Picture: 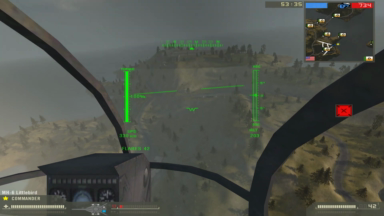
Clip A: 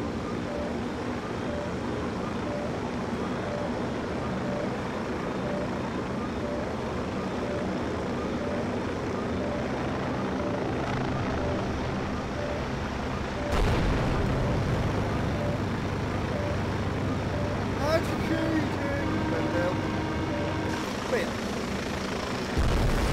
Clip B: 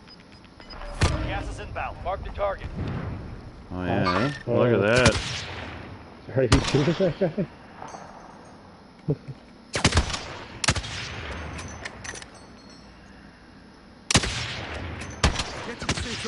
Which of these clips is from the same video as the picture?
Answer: A